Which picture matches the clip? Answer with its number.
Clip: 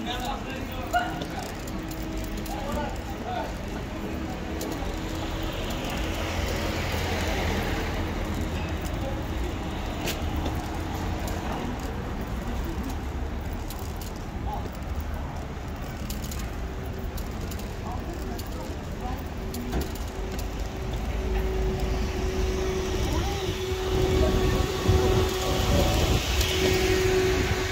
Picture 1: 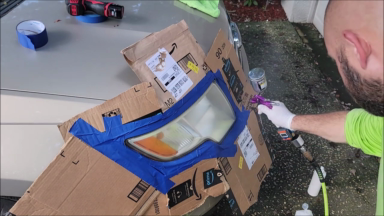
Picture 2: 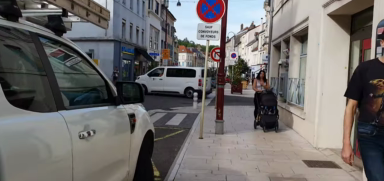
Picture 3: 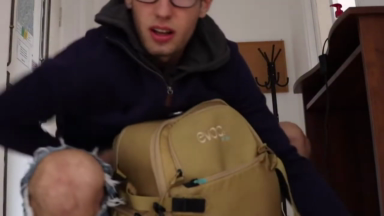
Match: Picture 2